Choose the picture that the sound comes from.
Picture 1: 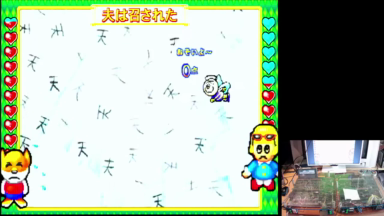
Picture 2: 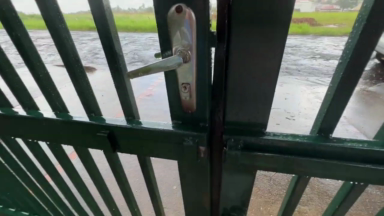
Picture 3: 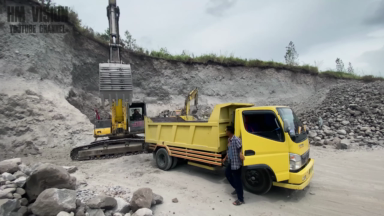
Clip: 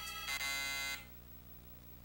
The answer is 1